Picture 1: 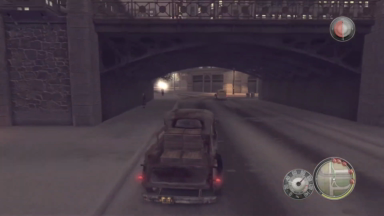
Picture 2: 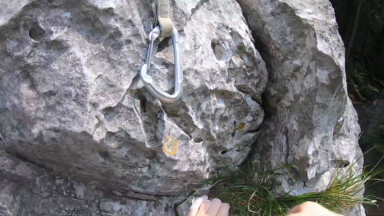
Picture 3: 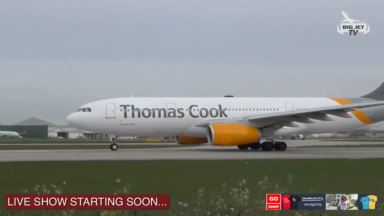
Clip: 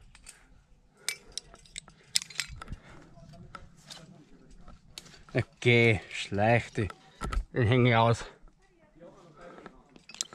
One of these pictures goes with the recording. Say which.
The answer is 2